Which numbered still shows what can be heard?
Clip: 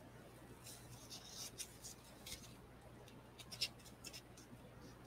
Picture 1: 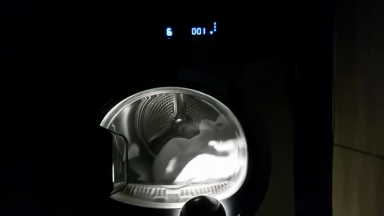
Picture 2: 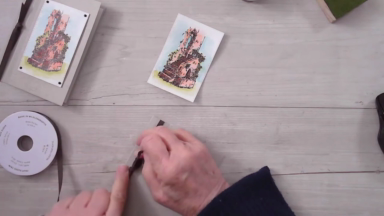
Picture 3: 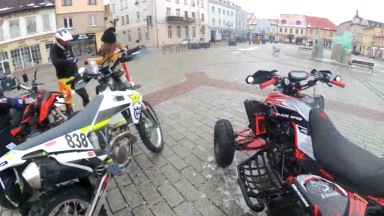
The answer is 2